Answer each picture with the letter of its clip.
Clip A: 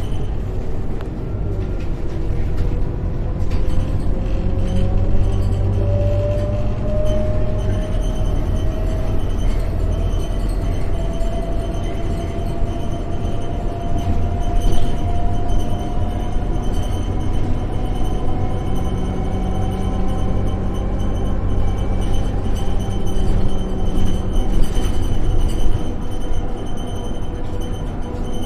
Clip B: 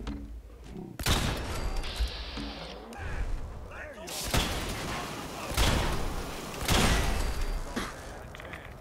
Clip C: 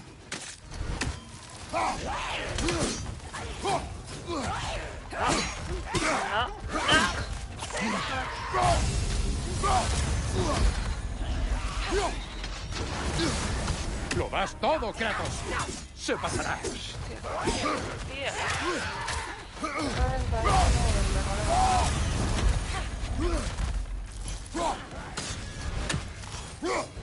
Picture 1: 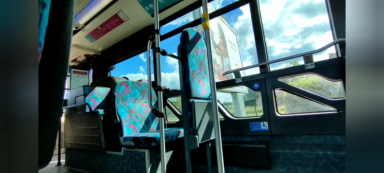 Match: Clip A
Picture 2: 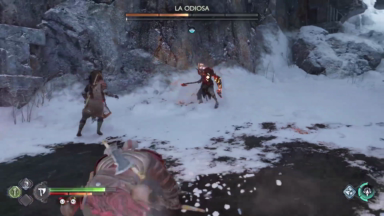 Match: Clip C